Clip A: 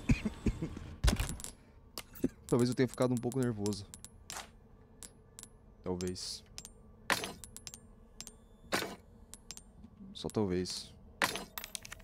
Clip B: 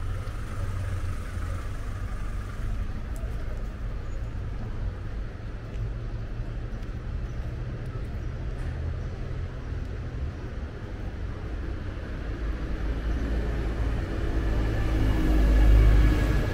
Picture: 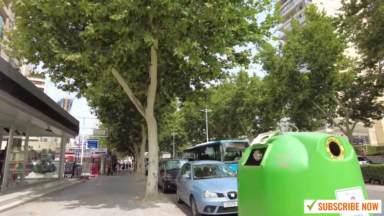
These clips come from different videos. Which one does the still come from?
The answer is B